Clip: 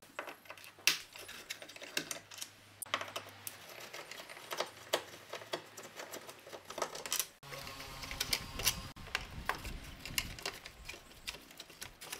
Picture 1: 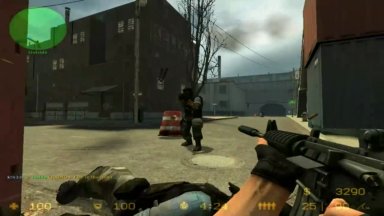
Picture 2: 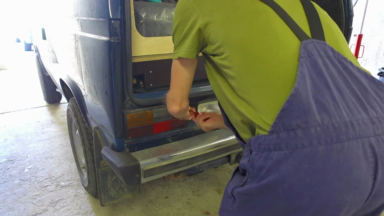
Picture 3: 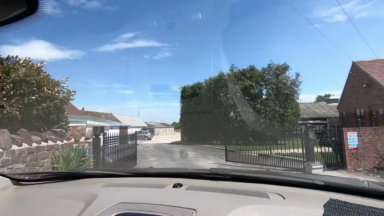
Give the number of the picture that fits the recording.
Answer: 2